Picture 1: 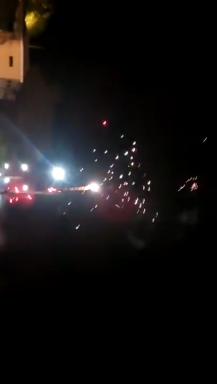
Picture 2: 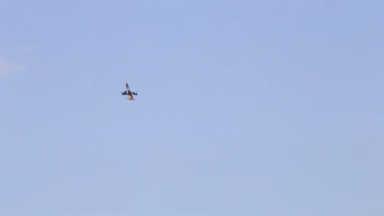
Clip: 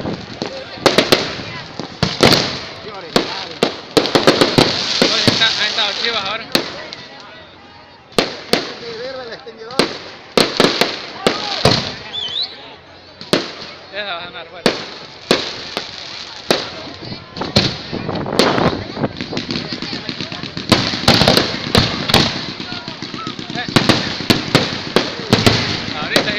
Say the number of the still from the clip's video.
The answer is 1